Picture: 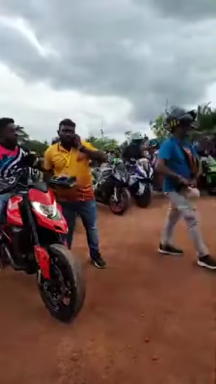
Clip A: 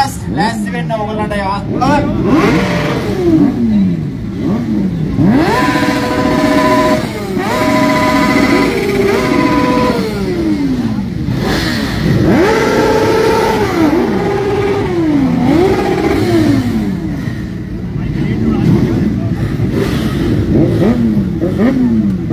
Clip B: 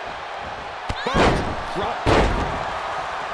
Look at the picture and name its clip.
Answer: A